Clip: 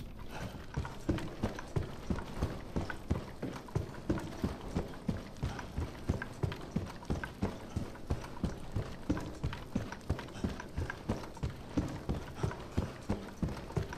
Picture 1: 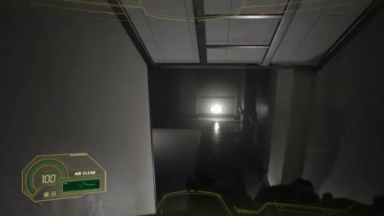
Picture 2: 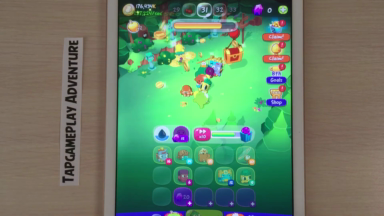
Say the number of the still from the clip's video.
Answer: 1